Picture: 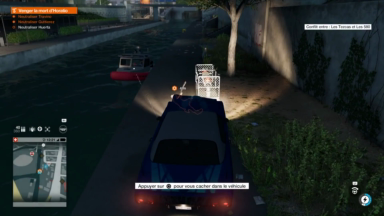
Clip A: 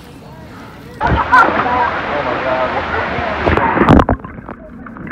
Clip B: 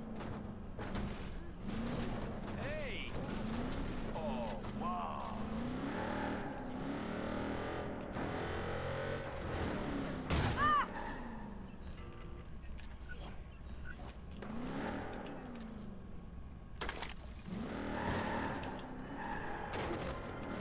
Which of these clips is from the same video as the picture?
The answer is B